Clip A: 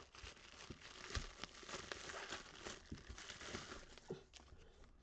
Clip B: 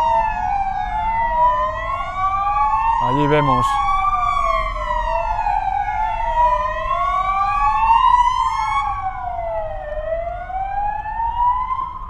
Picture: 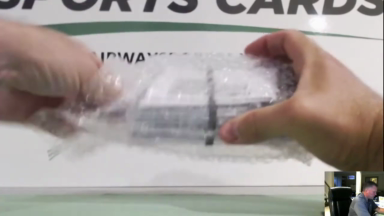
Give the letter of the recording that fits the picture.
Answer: A